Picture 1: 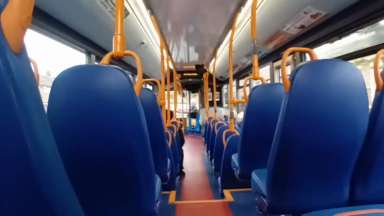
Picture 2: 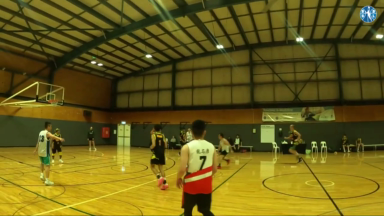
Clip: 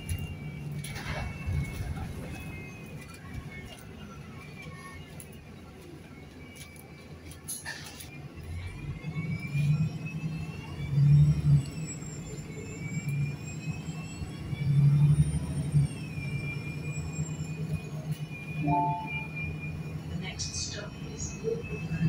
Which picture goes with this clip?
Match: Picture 1